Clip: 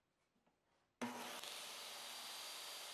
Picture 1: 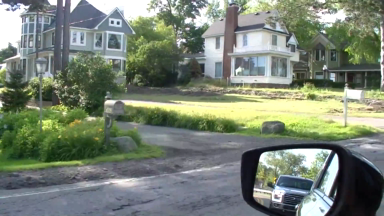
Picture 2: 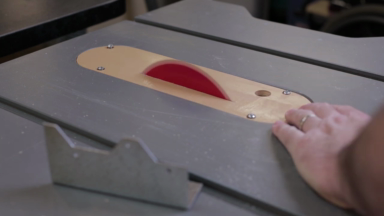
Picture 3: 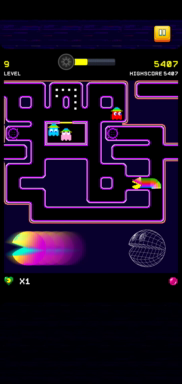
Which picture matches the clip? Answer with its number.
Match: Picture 2